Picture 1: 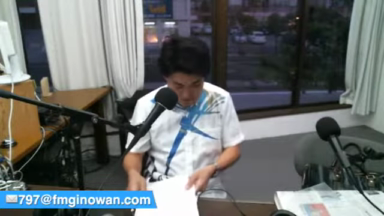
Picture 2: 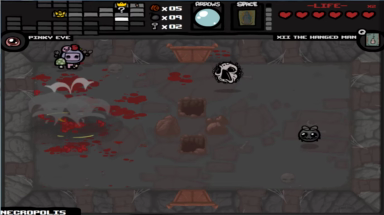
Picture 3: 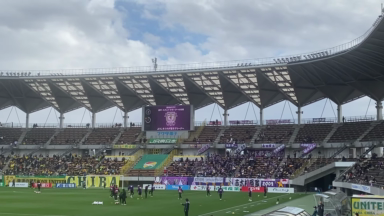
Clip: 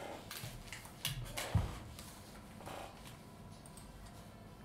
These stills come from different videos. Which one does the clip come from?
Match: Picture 1